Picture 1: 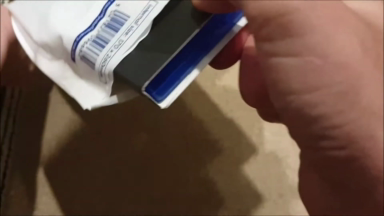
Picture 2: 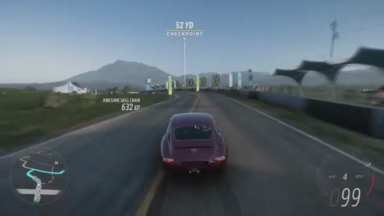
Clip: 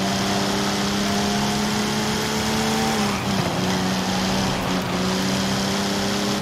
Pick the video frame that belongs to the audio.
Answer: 2